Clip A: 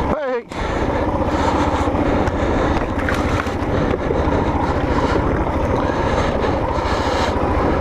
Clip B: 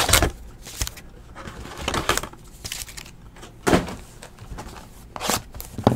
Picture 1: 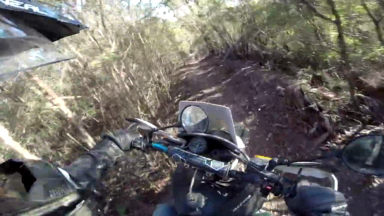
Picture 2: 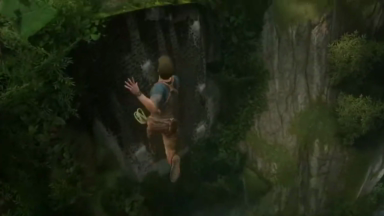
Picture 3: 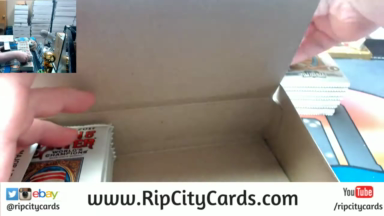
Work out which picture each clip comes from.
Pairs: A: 1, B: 3